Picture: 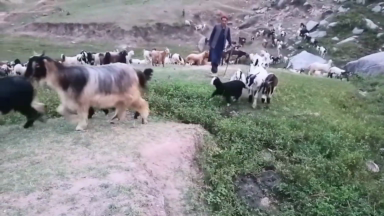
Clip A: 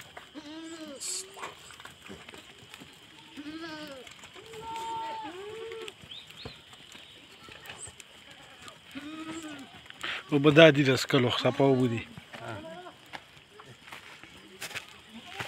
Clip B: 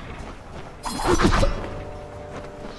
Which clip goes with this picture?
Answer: A